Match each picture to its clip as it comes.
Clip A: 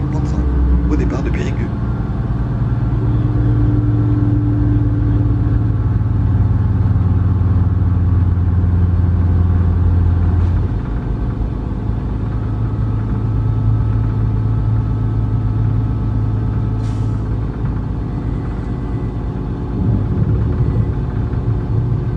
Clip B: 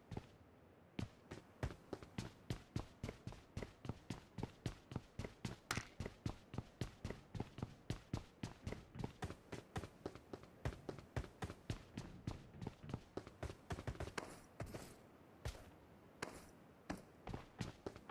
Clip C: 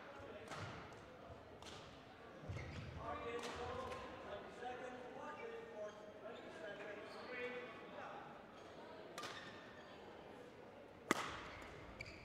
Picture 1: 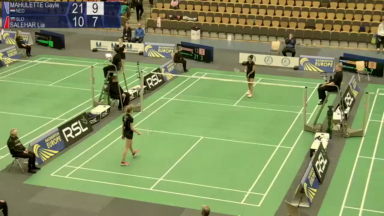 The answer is C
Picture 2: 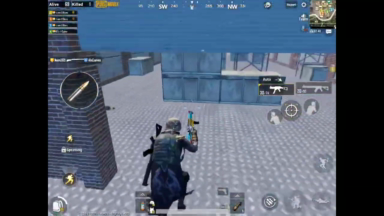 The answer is B